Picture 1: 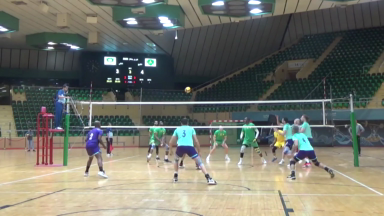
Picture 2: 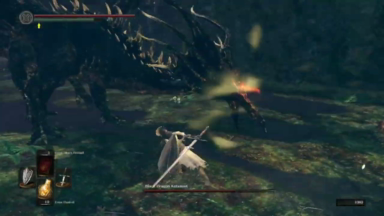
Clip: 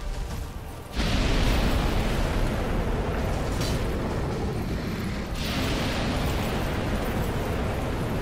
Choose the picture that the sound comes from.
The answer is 2